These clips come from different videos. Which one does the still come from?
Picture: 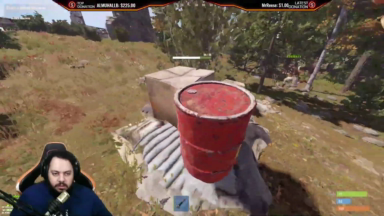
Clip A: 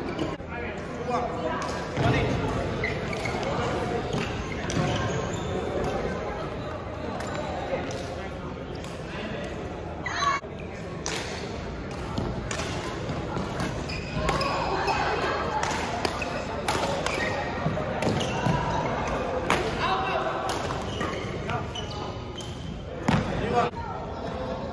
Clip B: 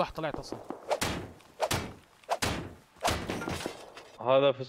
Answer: B